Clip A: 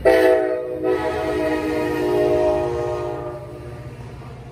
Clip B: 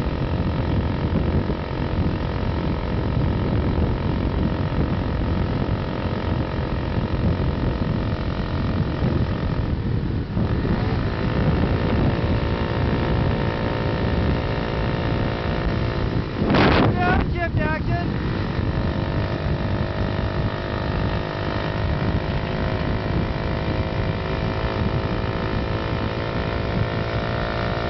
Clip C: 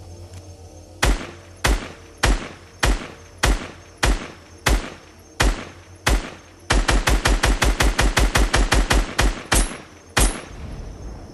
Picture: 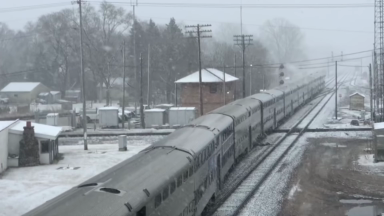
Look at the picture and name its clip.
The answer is A